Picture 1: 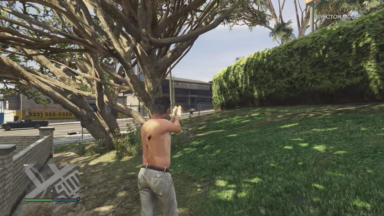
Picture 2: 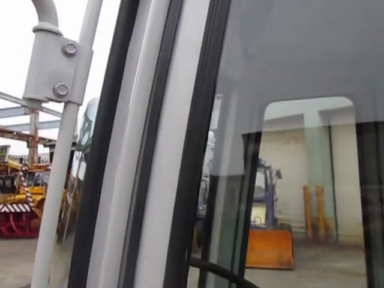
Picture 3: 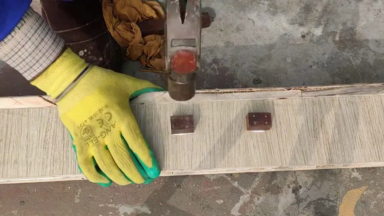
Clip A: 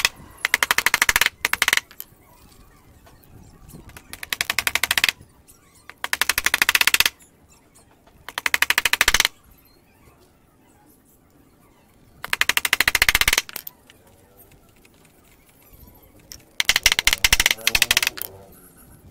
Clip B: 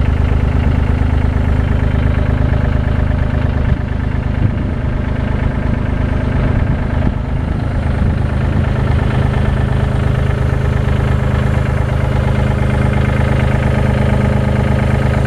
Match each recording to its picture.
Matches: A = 3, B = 2